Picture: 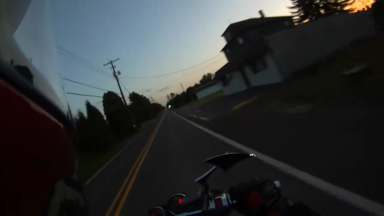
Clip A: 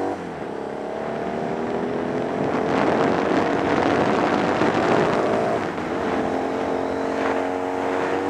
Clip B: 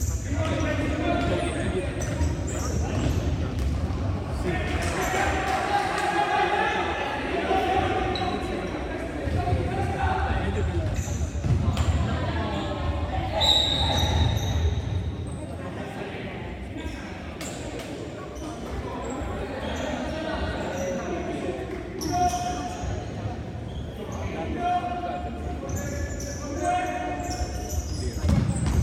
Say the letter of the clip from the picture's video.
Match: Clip A